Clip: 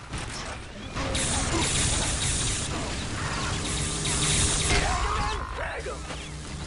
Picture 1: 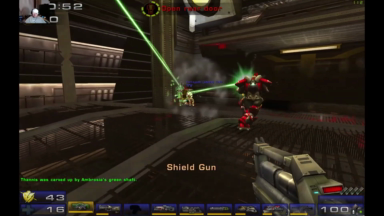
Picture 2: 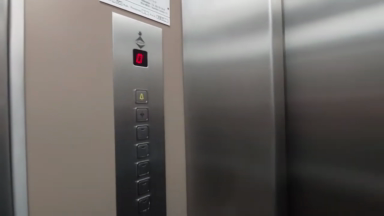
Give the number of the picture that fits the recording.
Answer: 1